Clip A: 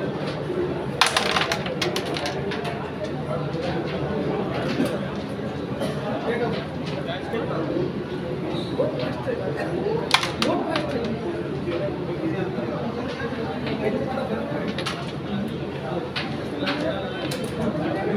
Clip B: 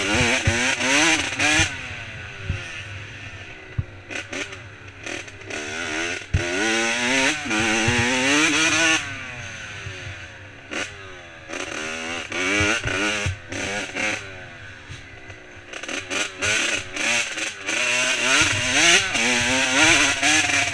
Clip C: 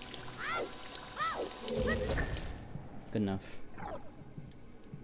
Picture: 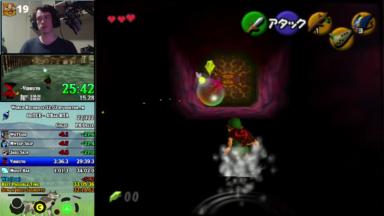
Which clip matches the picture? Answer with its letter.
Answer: C